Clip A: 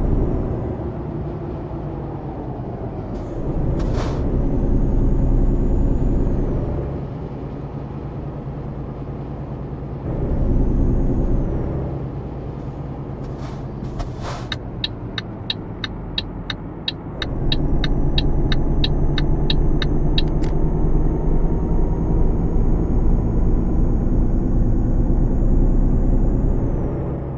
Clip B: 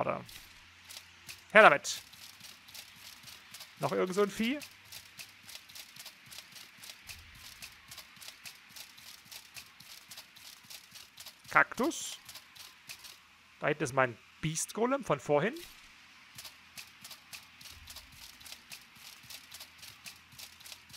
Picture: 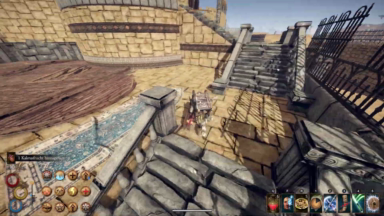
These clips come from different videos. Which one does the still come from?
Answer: B